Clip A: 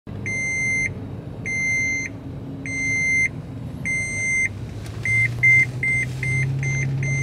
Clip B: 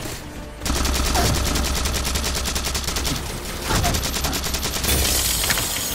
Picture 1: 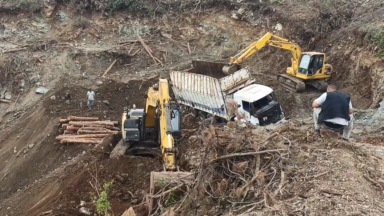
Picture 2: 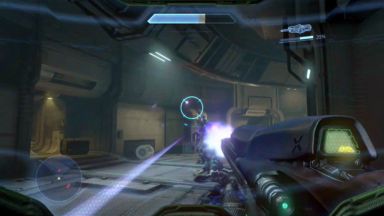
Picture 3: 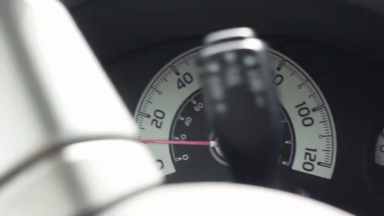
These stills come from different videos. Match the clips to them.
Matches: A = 3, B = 2